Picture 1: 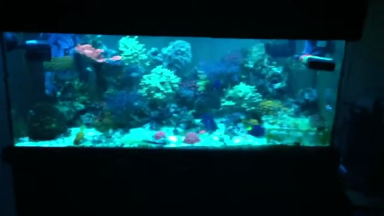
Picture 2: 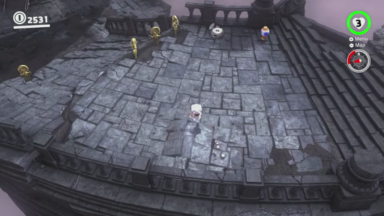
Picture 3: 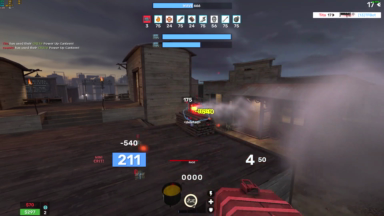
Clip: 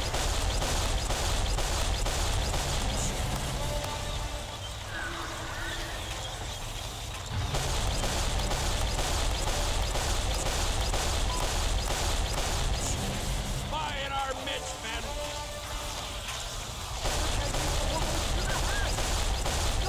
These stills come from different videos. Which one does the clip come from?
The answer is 3